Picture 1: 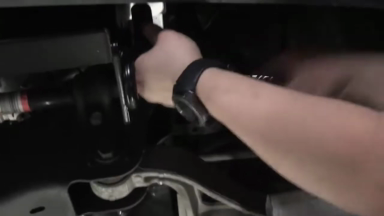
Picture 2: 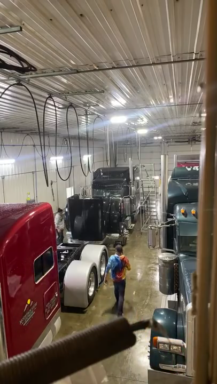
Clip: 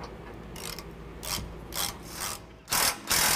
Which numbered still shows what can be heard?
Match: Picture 1